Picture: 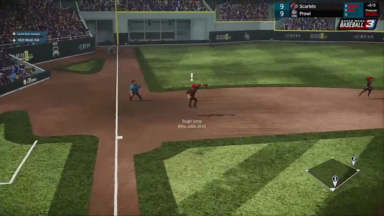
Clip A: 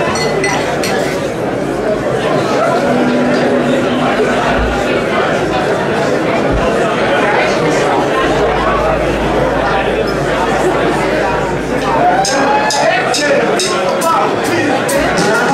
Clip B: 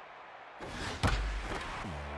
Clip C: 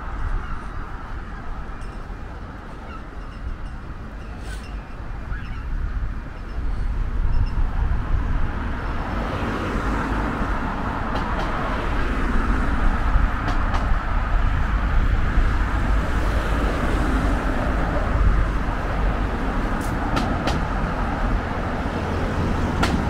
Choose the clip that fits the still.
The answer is B